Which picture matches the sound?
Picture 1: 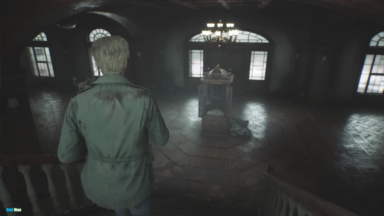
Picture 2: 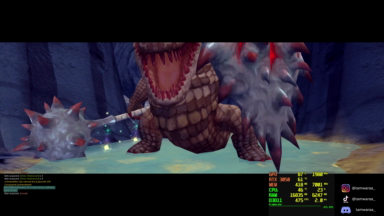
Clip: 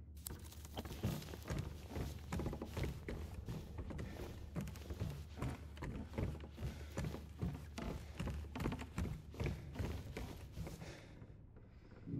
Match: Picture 1